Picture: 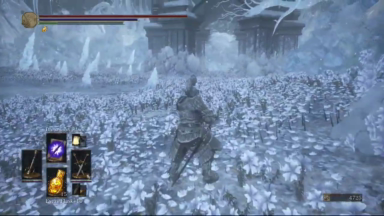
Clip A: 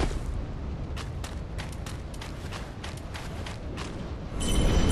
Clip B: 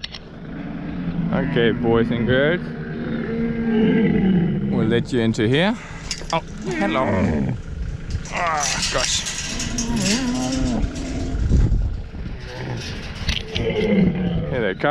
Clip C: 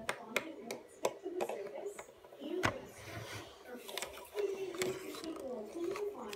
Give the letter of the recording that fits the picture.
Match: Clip A